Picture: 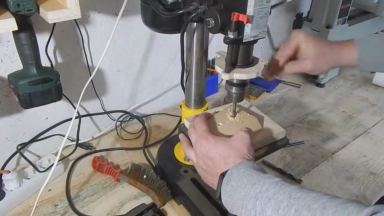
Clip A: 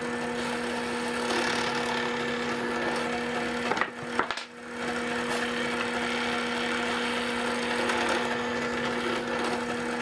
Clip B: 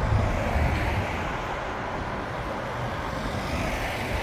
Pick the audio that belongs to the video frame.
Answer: A